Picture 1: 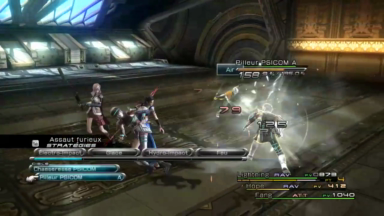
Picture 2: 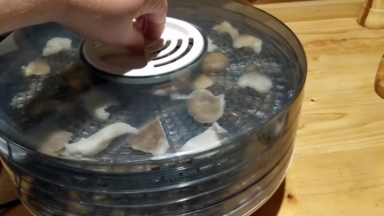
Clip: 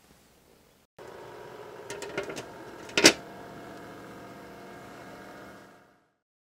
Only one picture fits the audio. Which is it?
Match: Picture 2